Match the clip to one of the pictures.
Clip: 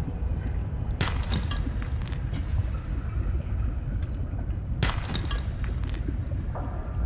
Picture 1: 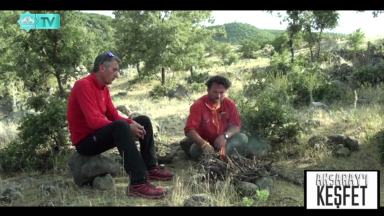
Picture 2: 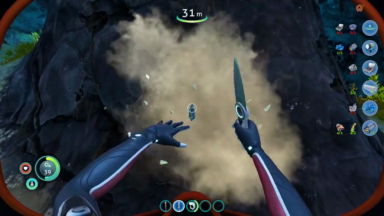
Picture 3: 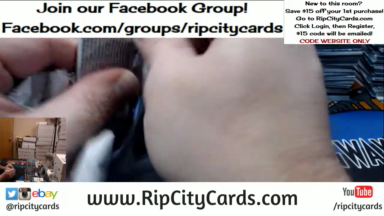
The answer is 2